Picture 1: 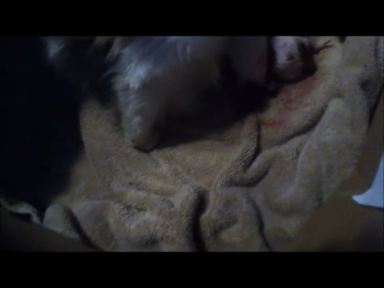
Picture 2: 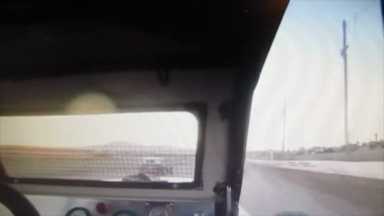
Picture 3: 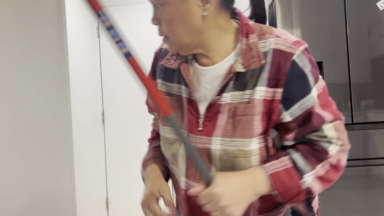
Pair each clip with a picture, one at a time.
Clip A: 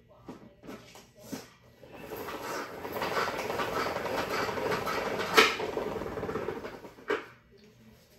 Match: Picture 3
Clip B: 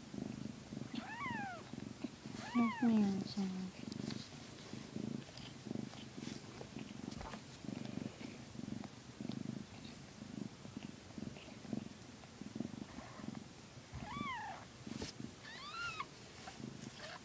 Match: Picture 1